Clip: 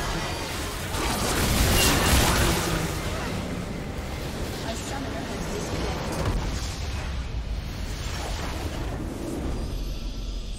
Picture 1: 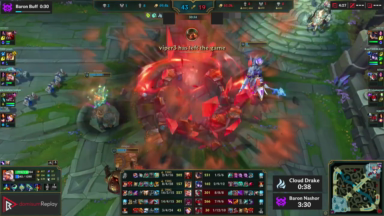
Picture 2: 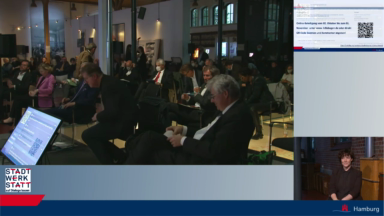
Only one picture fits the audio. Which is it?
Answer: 1